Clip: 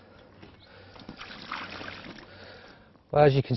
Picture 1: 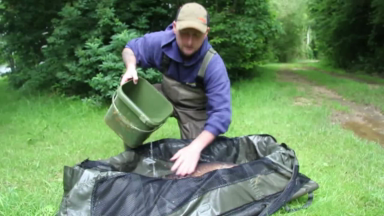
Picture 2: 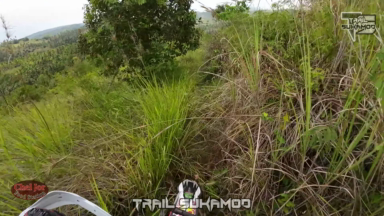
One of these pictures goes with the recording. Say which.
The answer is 1